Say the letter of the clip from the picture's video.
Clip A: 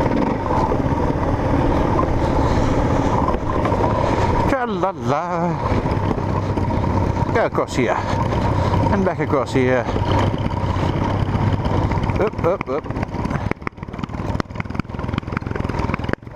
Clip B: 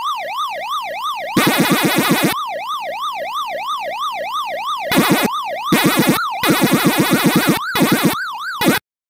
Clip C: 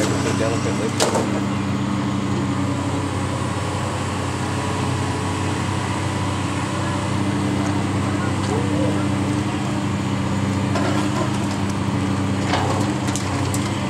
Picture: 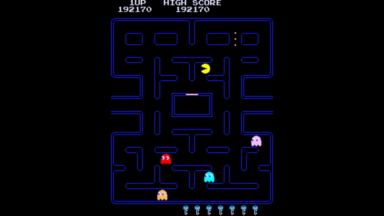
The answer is B